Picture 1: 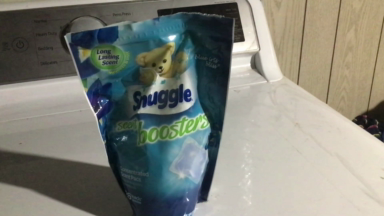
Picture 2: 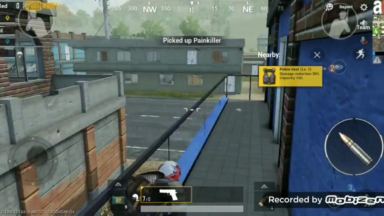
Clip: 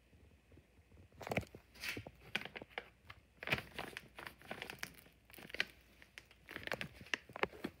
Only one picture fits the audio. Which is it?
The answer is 1